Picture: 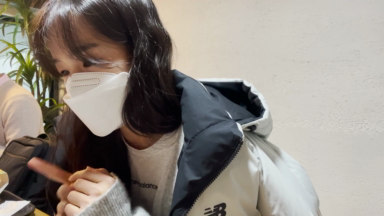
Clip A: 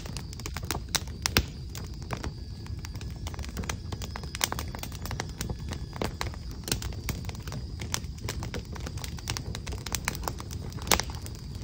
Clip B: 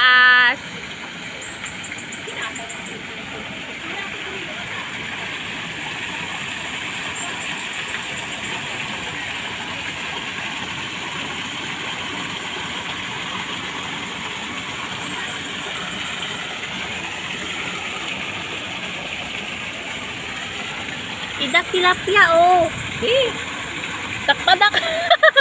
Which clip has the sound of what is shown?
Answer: A